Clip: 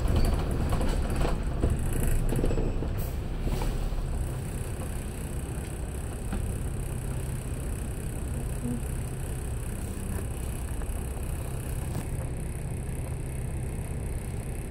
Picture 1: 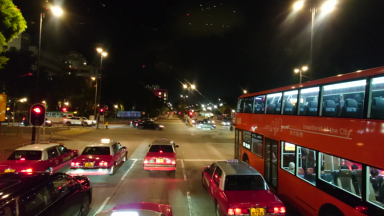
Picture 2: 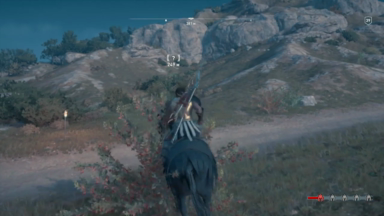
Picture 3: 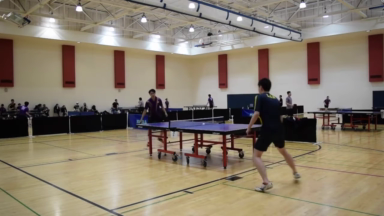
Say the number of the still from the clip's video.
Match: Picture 1